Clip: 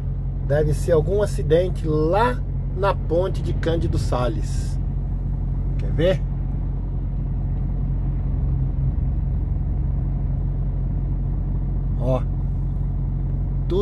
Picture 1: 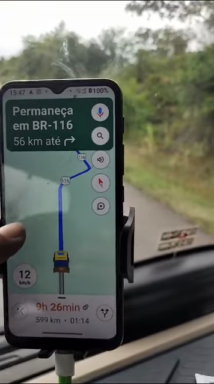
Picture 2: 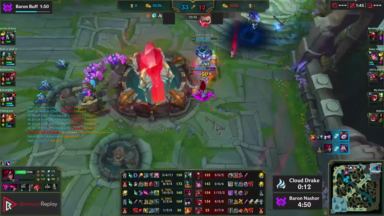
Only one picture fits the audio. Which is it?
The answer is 1